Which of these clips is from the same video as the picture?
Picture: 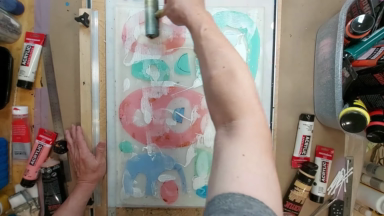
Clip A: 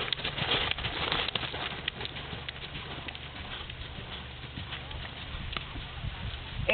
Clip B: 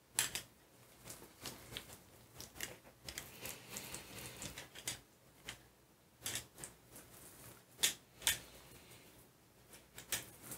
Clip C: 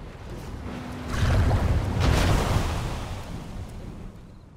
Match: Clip B